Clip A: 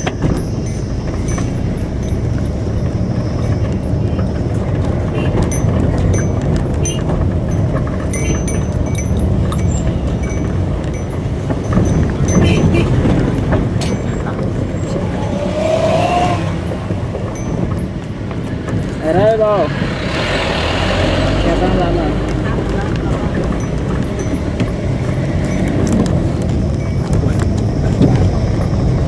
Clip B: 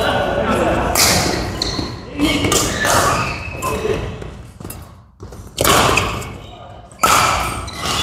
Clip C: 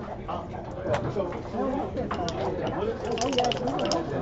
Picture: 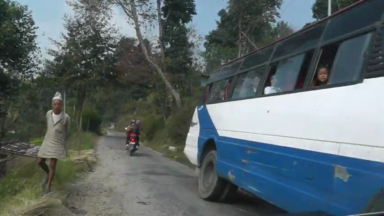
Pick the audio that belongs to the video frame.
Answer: A